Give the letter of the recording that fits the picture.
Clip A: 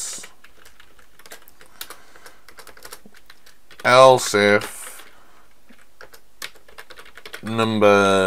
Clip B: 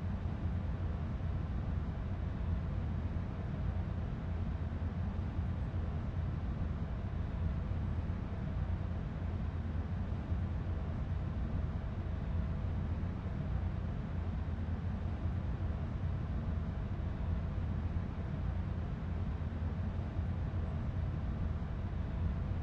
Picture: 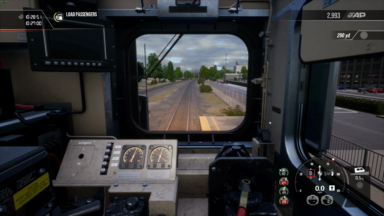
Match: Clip B